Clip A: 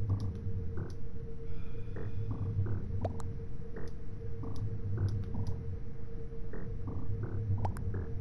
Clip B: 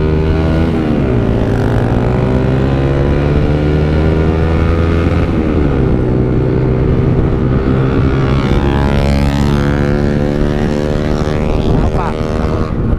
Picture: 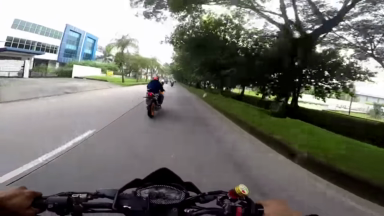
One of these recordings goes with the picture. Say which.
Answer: B